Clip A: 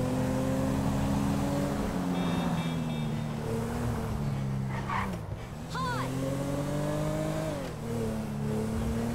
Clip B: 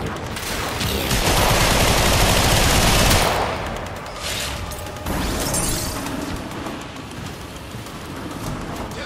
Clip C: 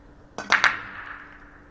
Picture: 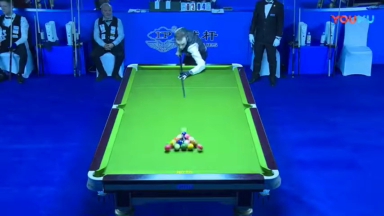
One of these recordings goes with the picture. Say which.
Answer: C